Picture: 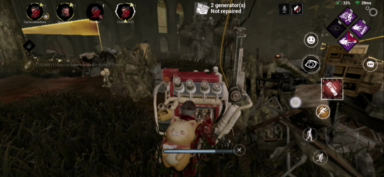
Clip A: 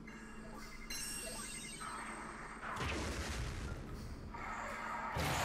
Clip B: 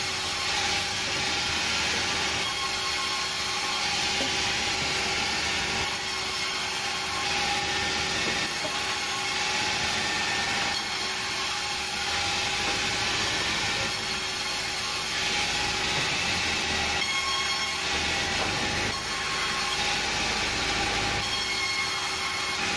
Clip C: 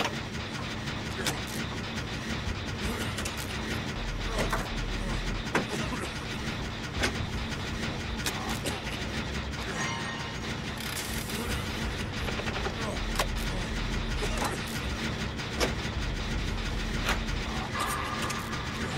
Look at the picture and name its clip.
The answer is C